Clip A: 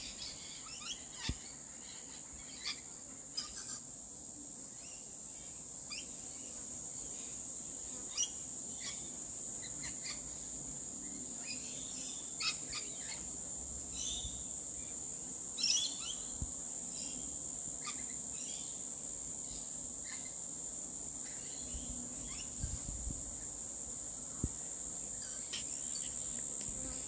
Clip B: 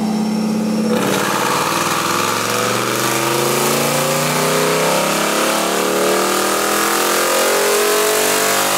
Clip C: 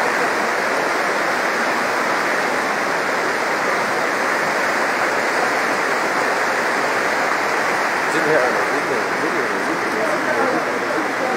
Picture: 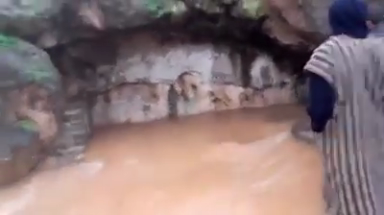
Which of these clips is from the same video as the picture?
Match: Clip C